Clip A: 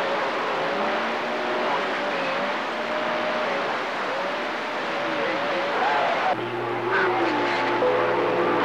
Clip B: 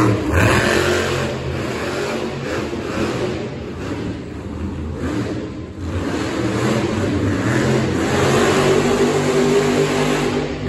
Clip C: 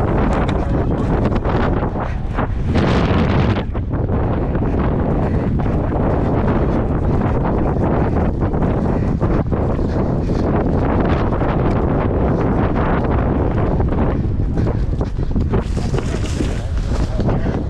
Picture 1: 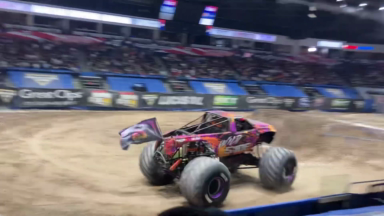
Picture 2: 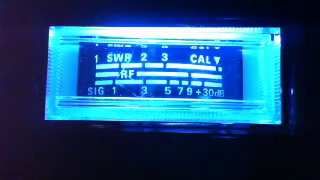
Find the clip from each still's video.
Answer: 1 B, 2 A